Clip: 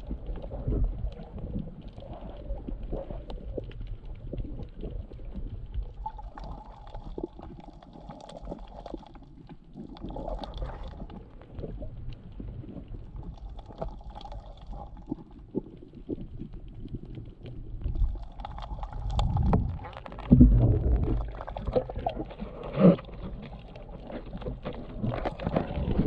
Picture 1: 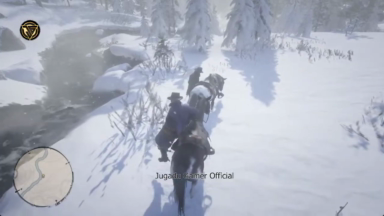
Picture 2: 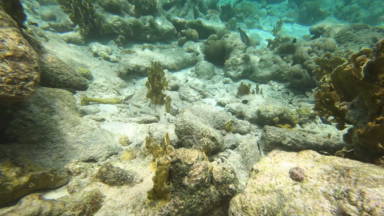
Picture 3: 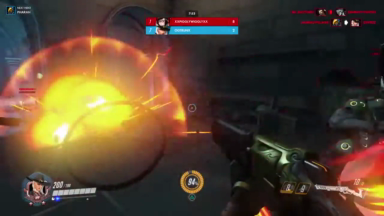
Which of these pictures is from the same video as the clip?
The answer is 2